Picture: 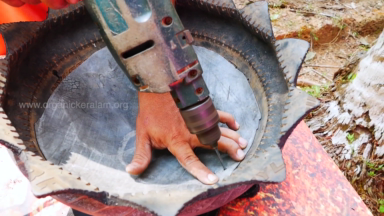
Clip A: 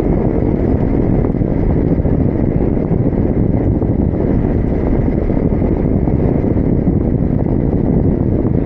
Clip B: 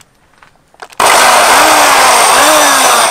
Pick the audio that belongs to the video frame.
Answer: B